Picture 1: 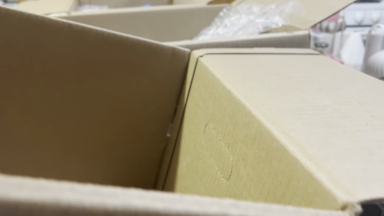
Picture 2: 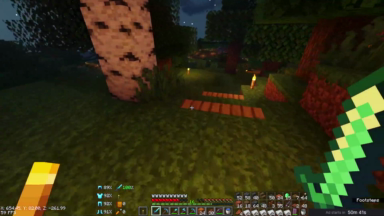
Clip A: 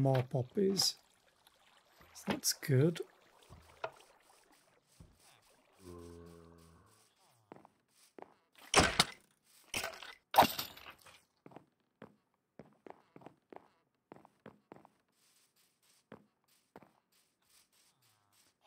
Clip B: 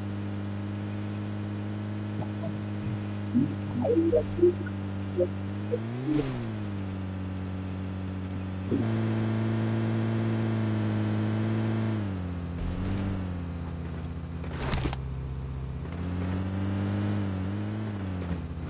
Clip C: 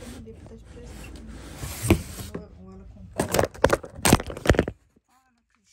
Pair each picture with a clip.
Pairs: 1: C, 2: A